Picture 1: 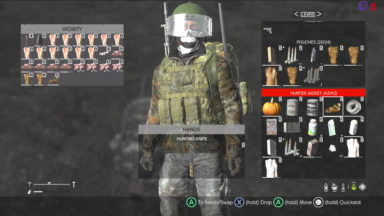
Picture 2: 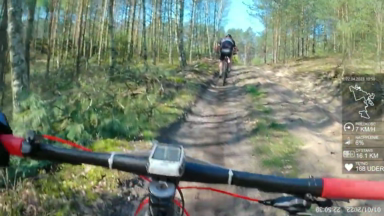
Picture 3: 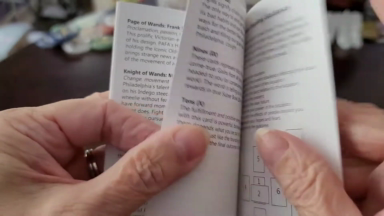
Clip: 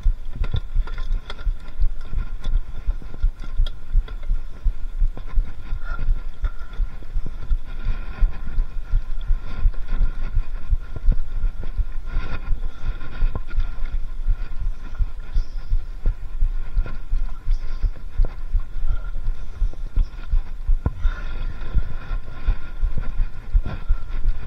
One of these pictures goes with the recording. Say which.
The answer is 2